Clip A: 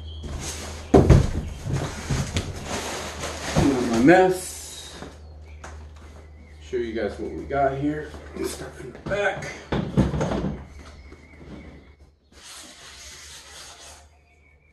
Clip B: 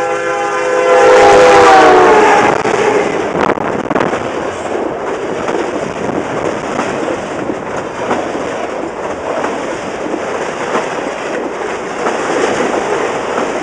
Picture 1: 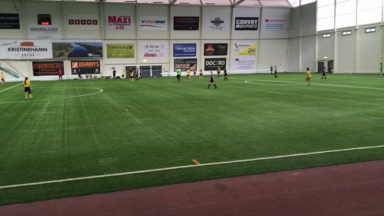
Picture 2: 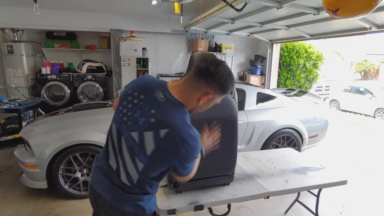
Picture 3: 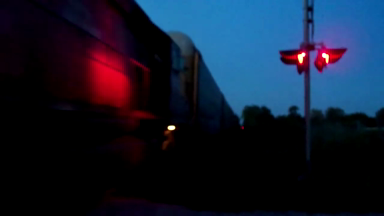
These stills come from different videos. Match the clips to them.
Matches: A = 2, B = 3